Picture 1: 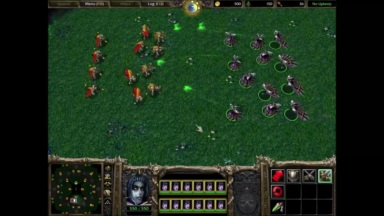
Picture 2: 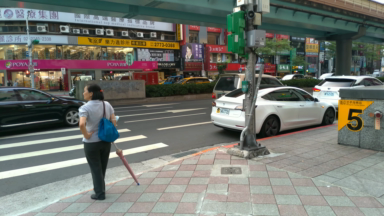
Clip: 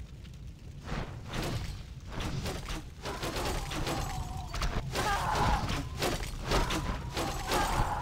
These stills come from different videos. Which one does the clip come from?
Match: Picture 1